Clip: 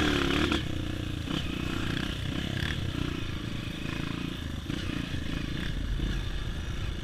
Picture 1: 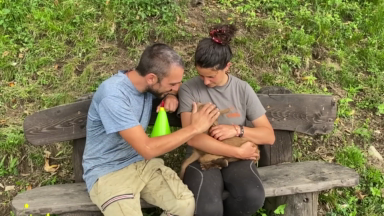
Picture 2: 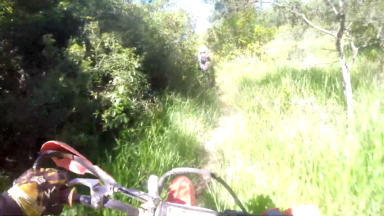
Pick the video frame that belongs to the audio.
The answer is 2